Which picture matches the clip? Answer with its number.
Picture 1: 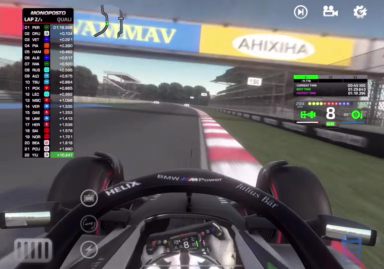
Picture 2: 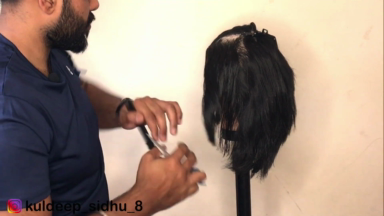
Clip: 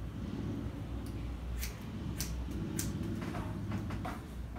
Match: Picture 2